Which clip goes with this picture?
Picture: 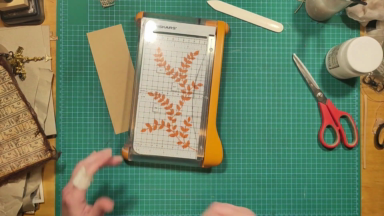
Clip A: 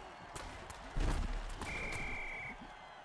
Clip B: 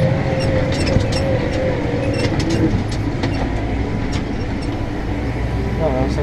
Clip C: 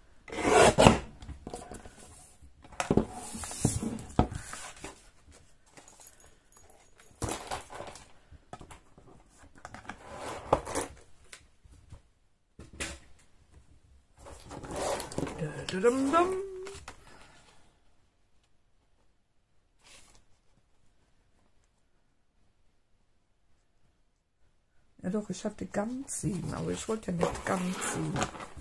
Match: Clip C